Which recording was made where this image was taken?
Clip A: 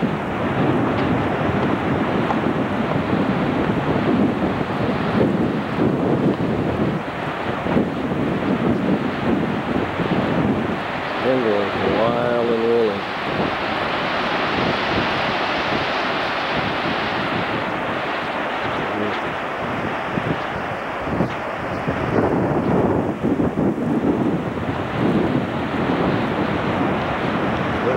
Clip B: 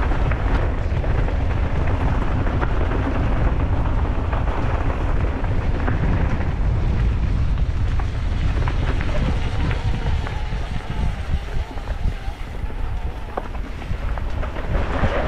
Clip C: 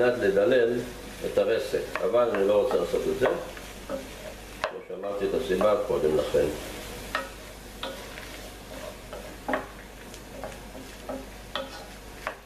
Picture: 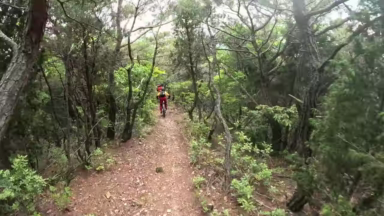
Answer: B